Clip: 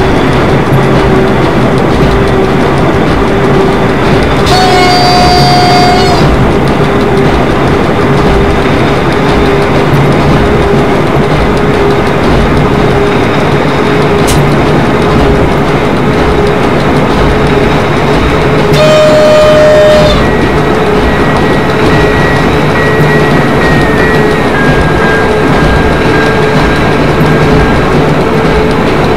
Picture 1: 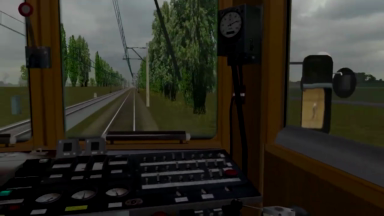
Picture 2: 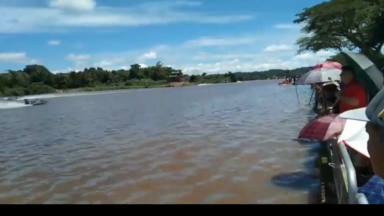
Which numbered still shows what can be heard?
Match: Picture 1